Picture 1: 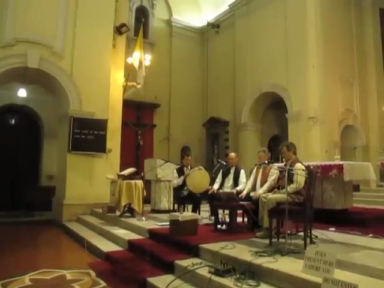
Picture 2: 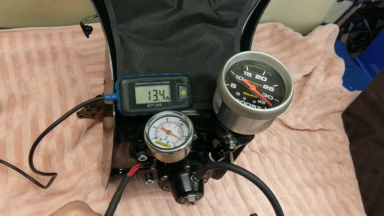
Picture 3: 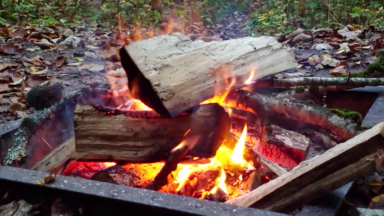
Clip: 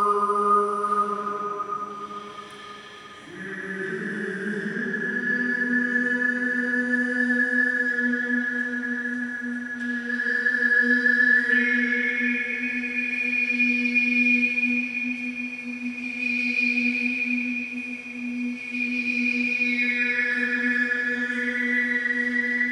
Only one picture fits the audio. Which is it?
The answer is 1